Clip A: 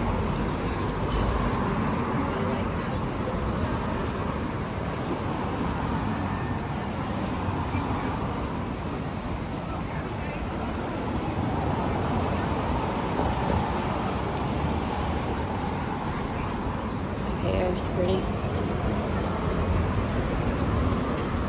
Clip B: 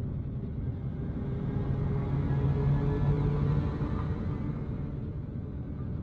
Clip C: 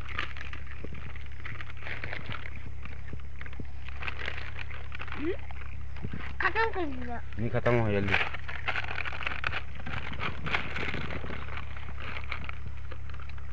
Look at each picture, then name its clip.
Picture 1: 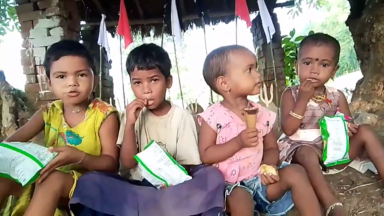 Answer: C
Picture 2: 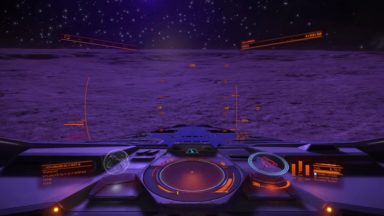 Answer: B